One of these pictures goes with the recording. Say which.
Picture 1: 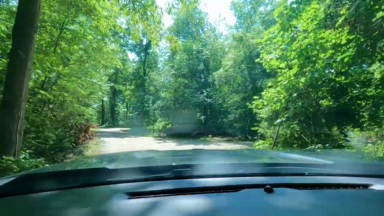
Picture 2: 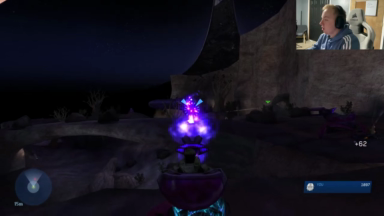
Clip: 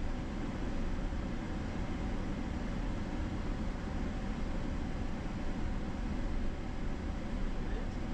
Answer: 1